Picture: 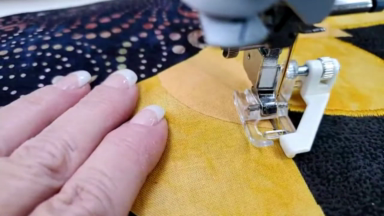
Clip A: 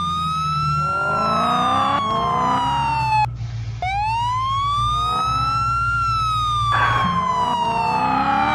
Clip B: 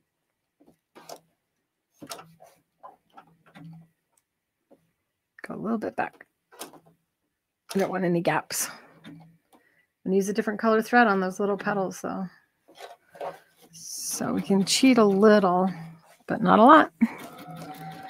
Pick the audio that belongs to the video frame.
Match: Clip B